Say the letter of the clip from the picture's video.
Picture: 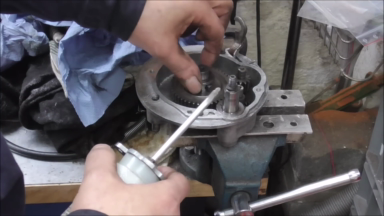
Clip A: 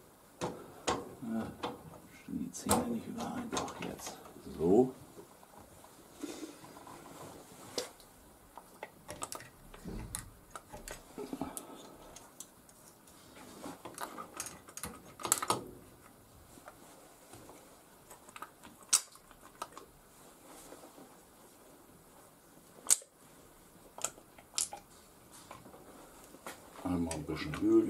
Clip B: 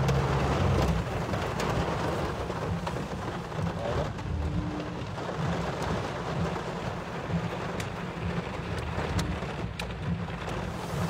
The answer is A